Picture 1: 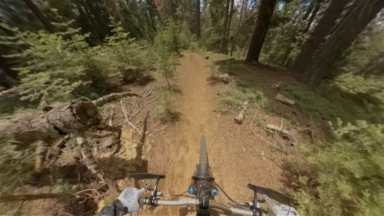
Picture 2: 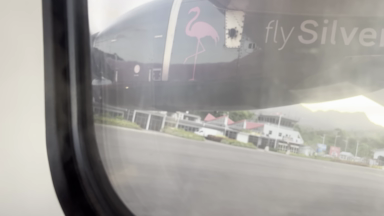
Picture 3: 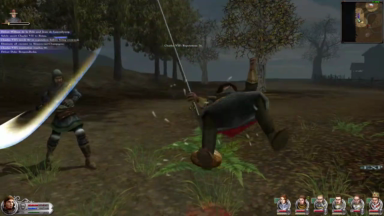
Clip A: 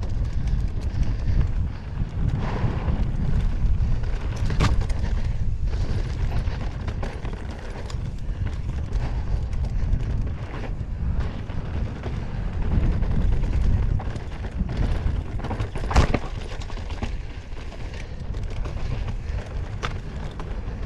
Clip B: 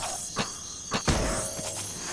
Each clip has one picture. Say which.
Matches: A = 1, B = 3